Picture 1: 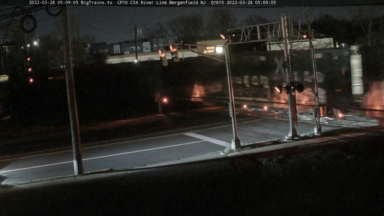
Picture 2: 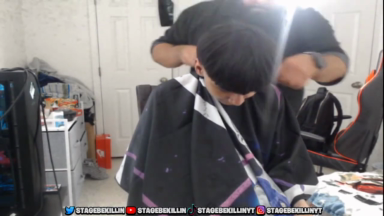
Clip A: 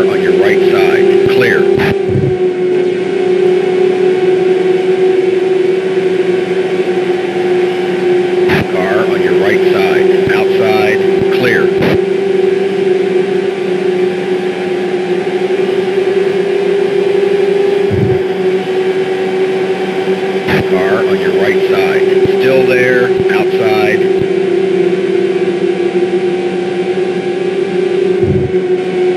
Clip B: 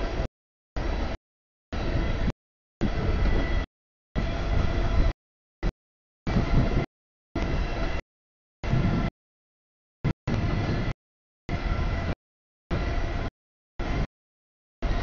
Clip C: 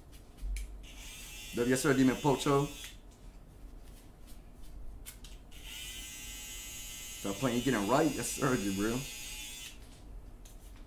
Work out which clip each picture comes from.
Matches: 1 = B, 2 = C